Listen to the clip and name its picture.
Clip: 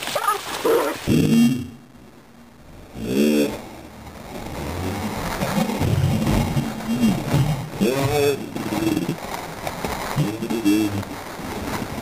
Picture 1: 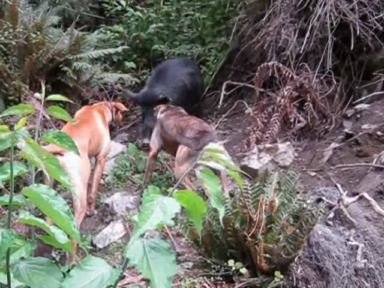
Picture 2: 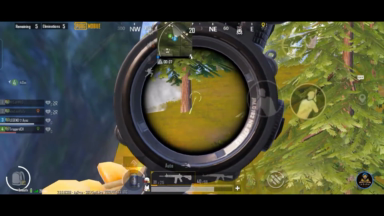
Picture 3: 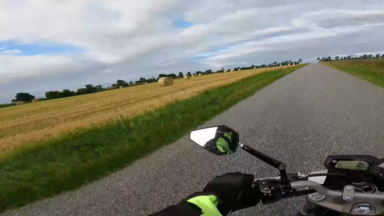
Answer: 1